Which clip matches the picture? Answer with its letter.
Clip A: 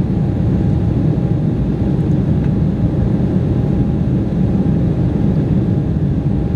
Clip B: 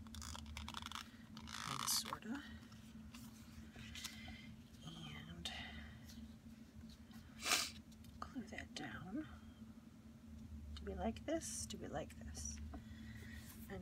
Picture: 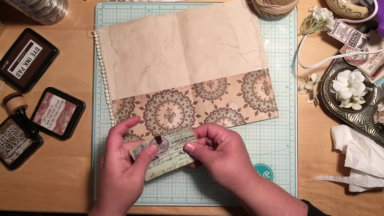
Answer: B